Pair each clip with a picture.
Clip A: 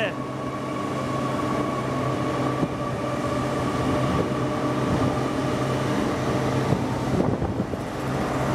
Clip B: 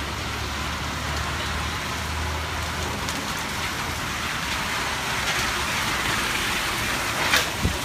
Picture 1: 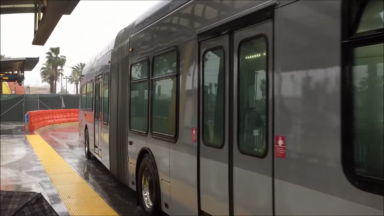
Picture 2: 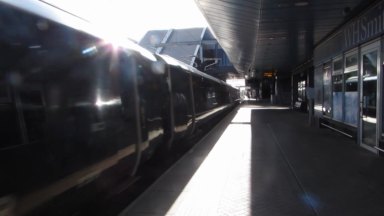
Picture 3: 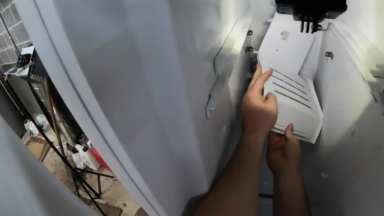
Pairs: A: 2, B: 1